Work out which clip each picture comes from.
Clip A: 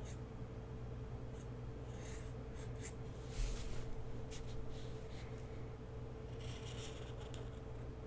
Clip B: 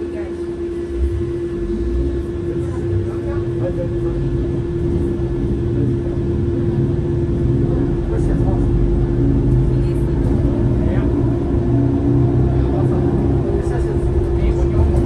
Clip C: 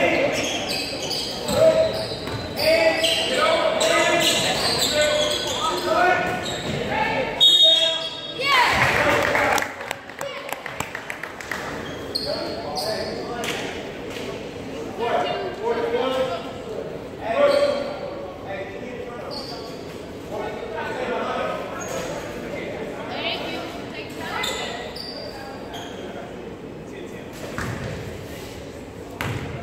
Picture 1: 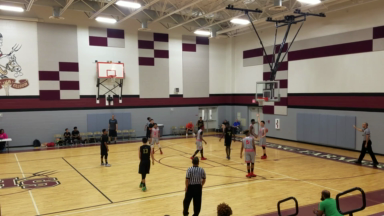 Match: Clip C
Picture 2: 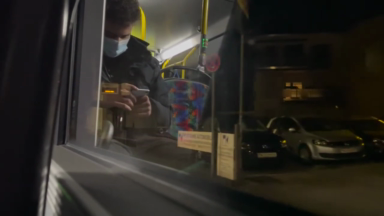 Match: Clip B